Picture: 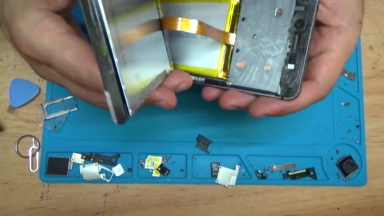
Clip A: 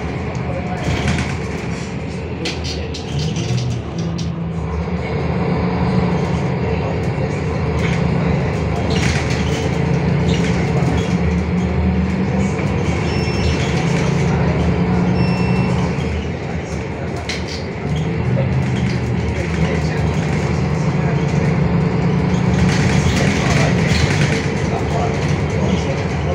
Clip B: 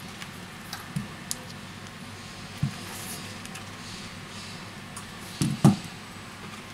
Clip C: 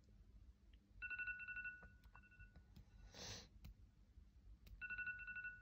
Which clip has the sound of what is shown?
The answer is B